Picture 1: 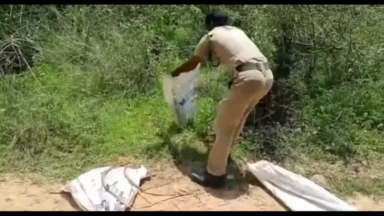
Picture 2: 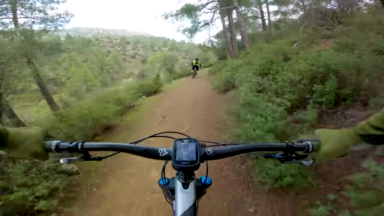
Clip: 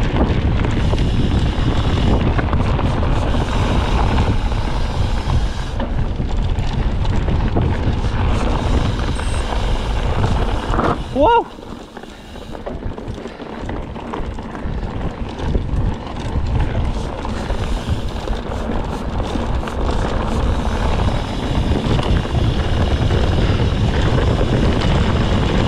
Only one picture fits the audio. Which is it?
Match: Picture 2